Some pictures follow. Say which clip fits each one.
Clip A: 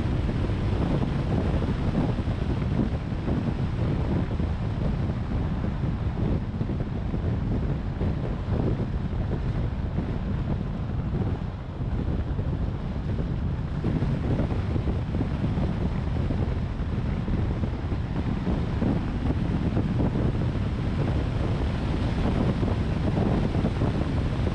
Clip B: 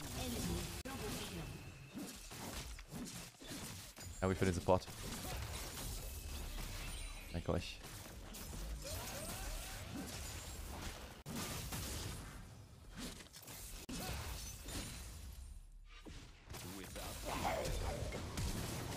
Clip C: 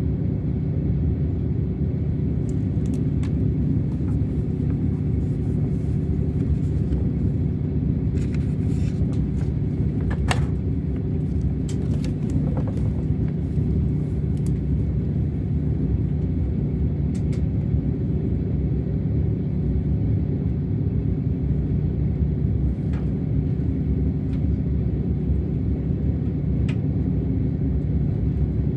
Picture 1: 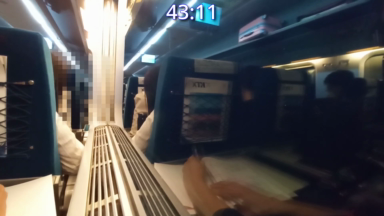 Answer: C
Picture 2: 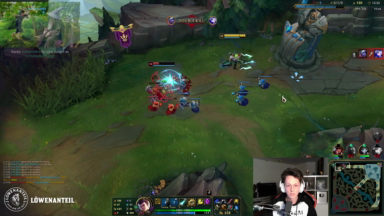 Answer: B